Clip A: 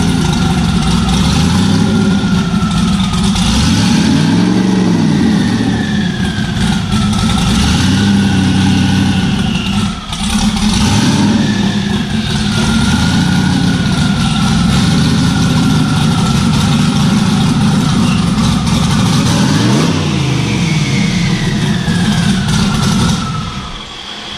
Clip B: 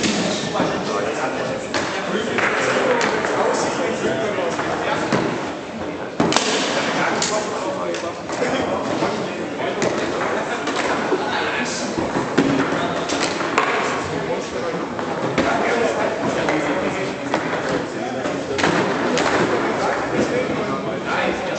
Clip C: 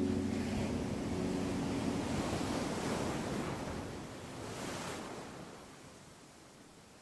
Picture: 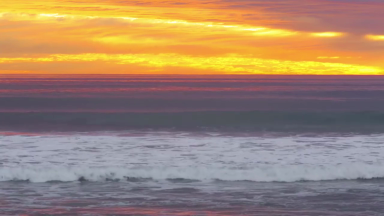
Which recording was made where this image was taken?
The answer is C